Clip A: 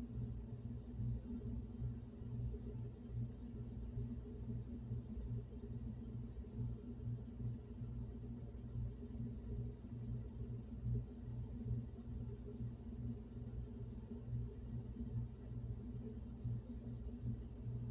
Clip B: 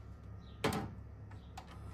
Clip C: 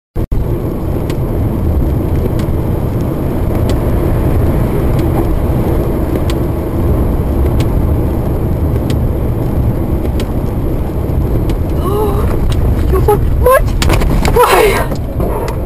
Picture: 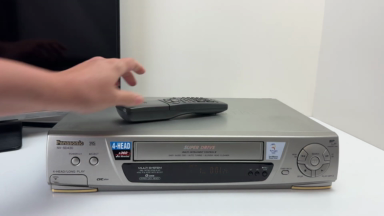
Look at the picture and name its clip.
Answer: B